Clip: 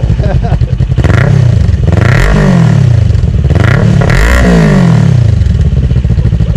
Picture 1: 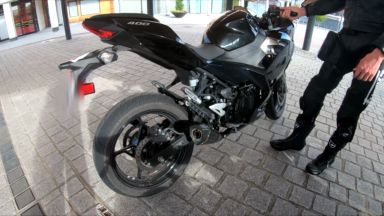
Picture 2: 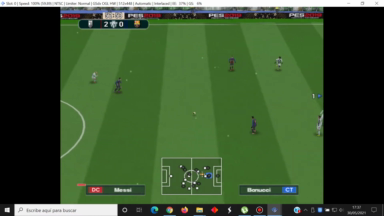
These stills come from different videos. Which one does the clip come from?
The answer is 1